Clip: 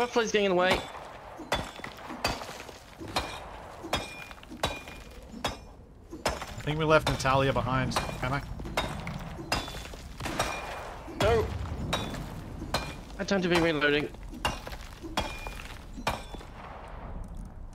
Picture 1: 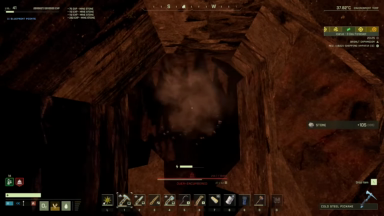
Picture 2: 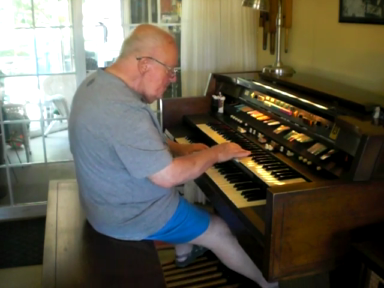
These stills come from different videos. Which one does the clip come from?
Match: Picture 1